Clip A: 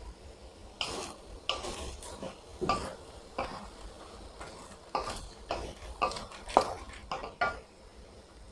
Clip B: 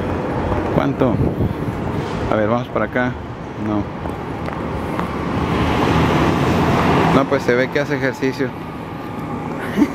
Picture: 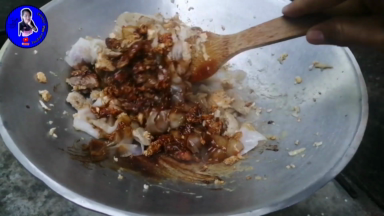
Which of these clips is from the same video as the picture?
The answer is A